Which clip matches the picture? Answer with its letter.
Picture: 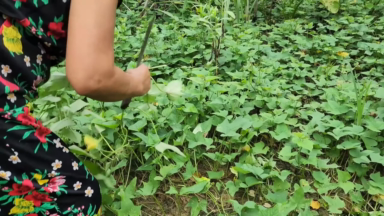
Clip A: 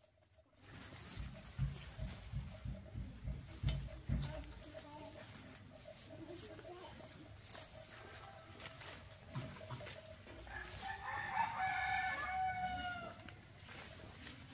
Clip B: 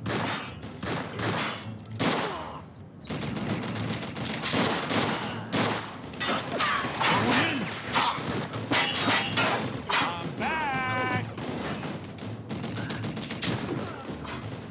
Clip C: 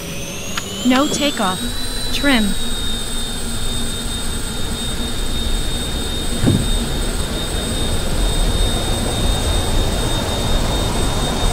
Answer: A